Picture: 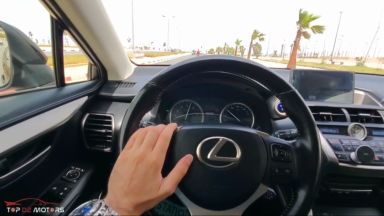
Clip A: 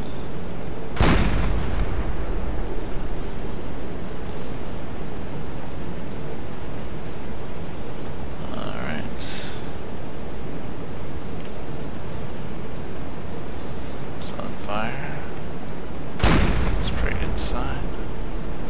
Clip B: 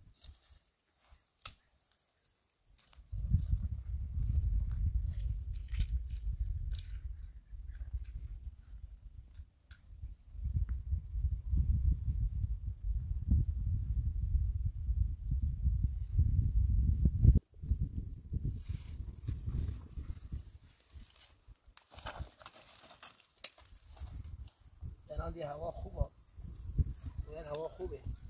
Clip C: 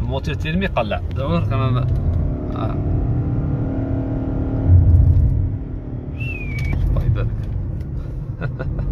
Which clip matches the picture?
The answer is C